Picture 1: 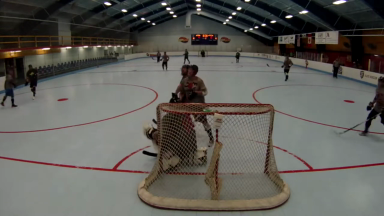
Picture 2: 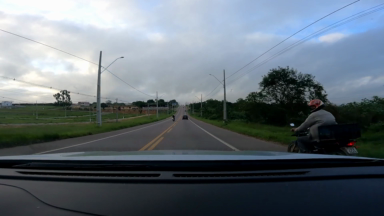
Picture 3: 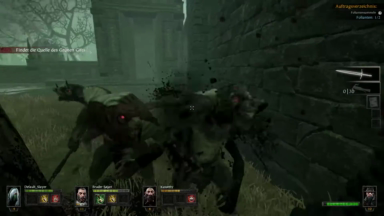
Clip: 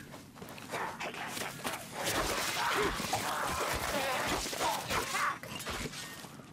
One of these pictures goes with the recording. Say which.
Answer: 3